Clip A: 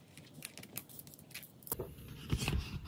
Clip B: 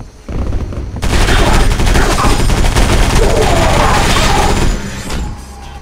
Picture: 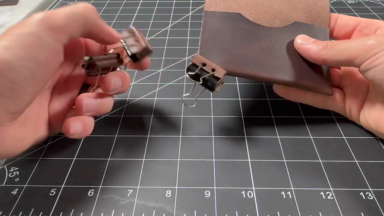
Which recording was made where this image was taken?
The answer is A